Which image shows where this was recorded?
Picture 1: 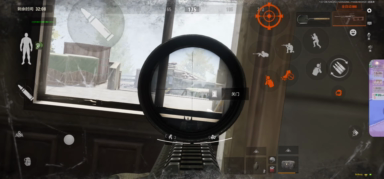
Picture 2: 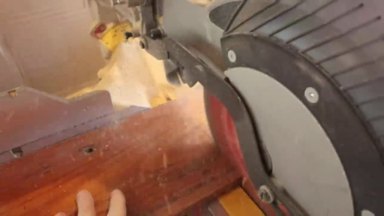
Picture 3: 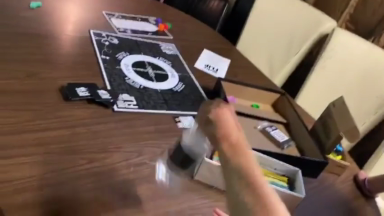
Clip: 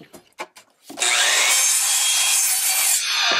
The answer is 2